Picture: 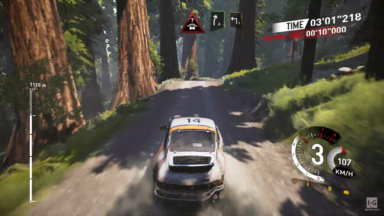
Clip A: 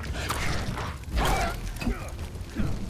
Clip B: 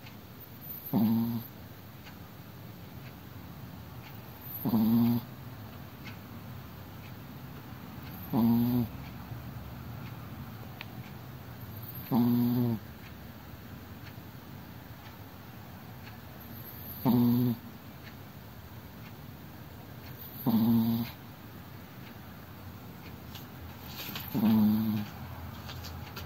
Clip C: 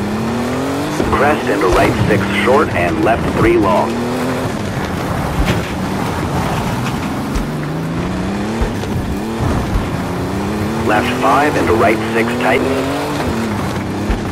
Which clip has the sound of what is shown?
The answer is C